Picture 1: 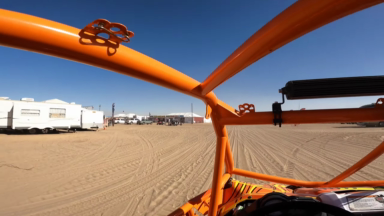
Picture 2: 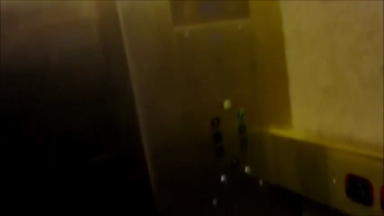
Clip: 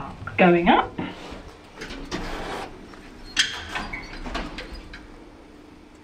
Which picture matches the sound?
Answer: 2